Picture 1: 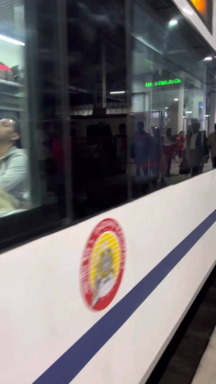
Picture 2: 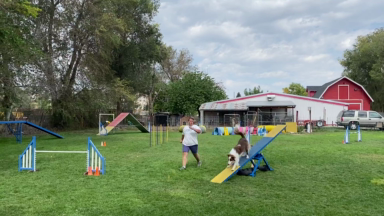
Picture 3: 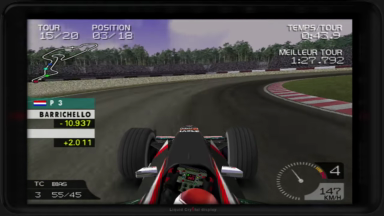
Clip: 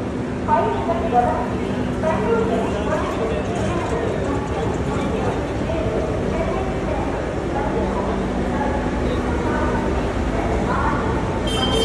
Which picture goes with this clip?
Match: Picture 1